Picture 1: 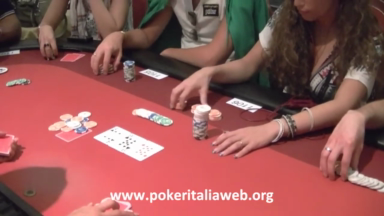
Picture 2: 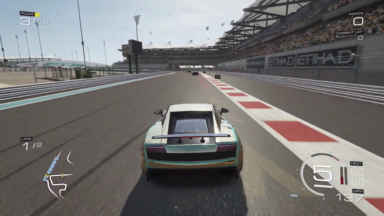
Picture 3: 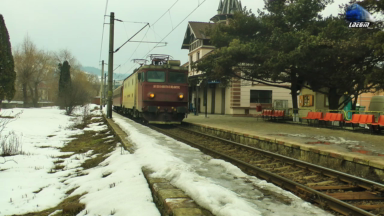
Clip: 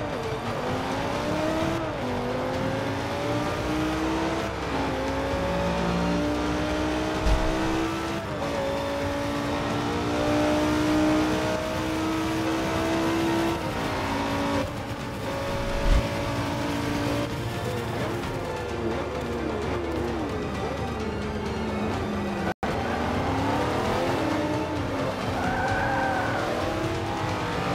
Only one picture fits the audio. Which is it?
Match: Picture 2